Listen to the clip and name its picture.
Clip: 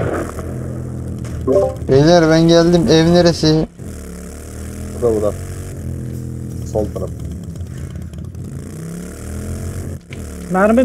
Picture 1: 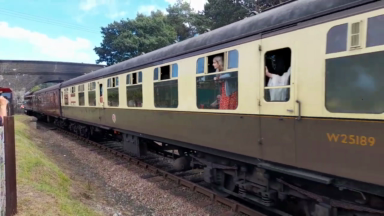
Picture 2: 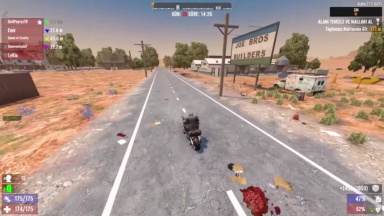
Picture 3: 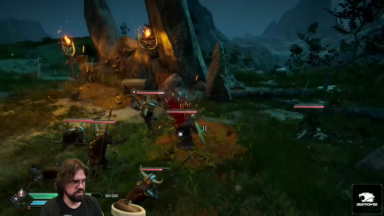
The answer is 2